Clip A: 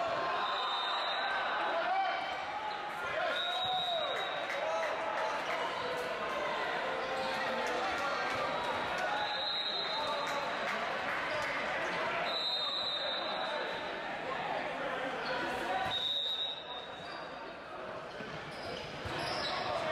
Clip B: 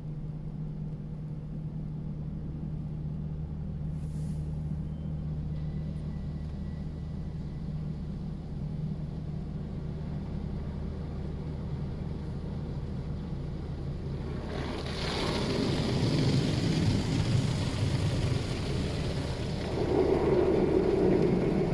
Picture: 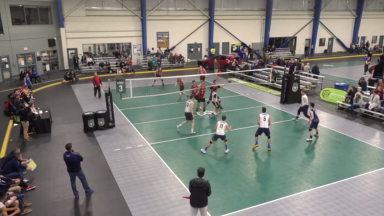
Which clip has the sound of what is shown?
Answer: A